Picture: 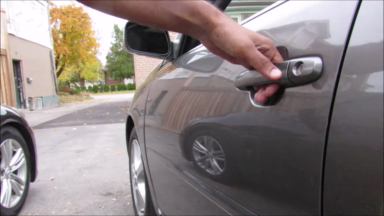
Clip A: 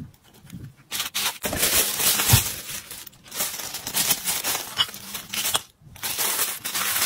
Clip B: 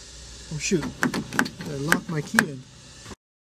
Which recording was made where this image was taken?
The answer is B